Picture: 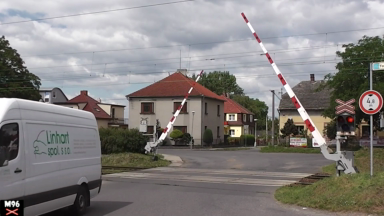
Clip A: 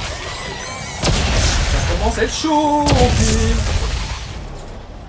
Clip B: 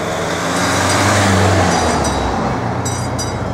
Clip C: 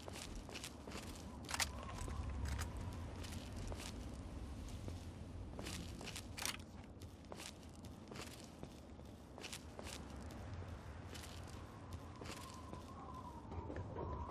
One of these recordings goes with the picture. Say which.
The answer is B